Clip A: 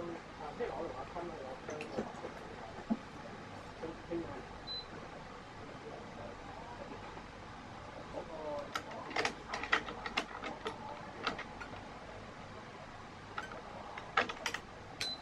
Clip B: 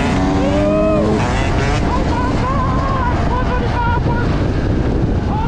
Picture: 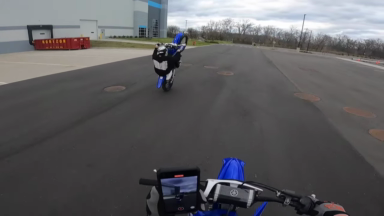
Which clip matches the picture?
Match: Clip B